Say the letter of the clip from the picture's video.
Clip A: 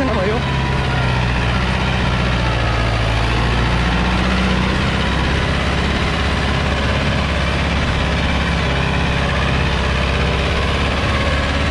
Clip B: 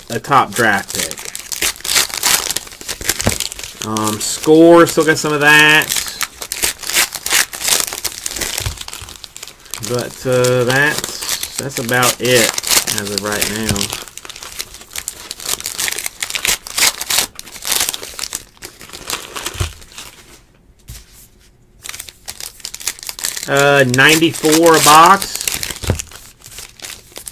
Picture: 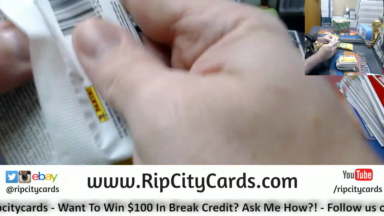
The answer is B